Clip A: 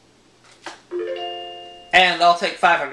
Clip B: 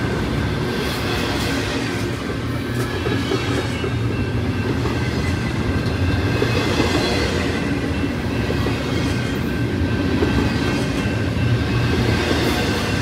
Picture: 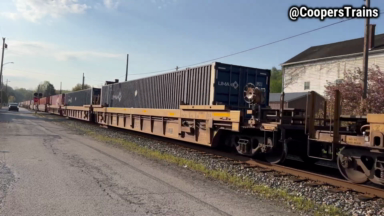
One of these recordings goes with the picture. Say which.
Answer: B